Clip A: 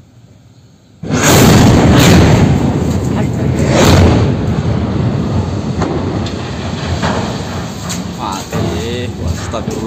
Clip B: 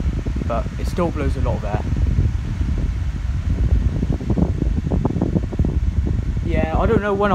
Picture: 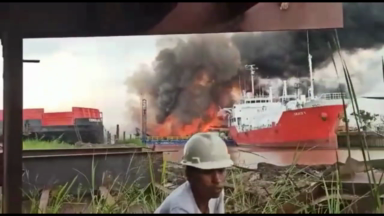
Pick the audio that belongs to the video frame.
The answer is A